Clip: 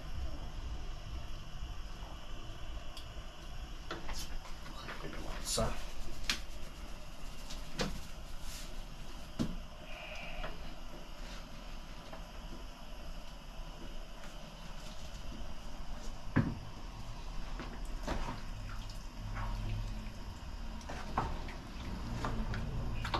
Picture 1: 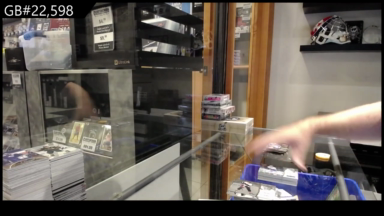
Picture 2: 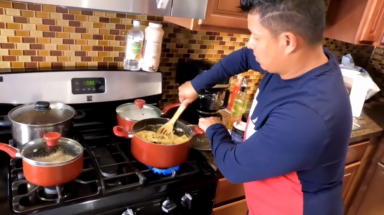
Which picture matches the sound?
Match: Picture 2